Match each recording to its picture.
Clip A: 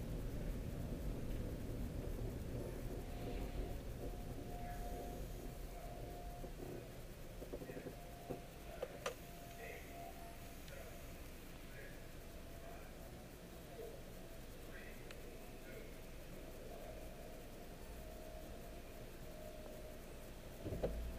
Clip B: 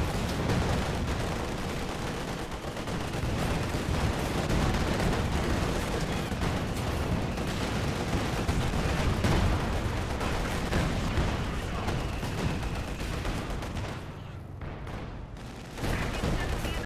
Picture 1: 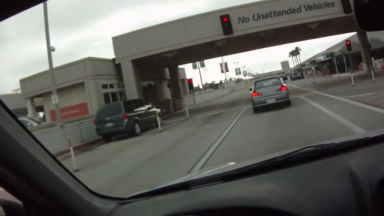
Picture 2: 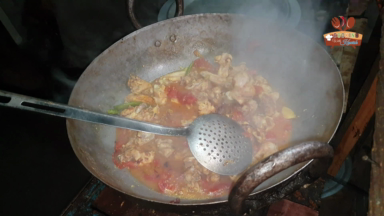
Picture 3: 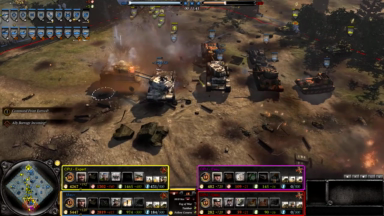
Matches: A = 1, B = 3